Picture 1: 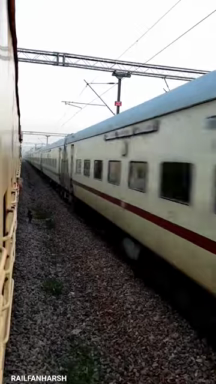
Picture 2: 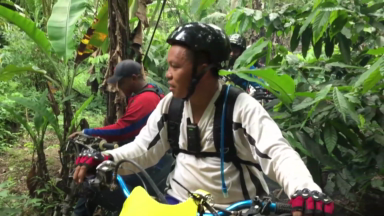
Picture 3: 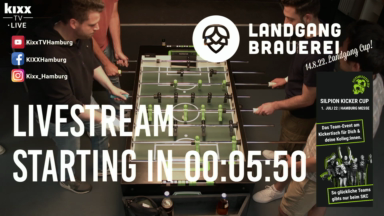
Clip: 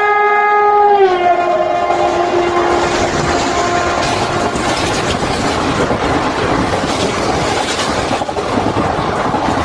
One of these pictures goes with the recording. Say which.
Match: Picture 1